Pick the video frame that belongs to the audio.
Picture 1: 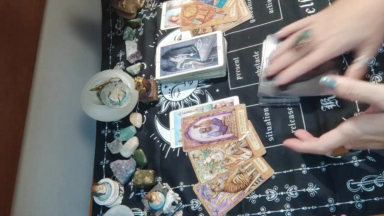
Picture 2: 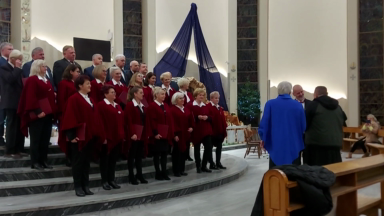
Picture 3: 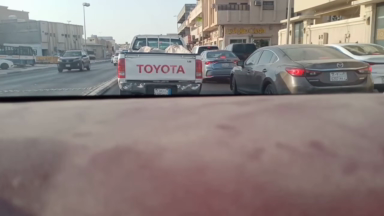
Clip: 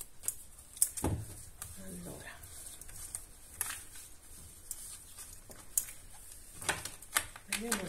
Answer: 1